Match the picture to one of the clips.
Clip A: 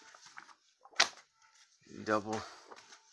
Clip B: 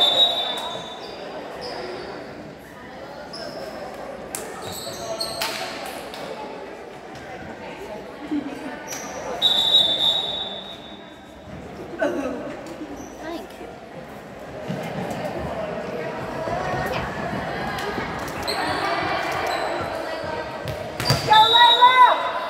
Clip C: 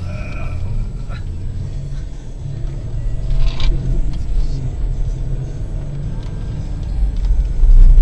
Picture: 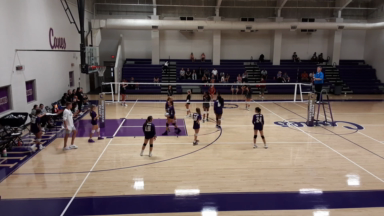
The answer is B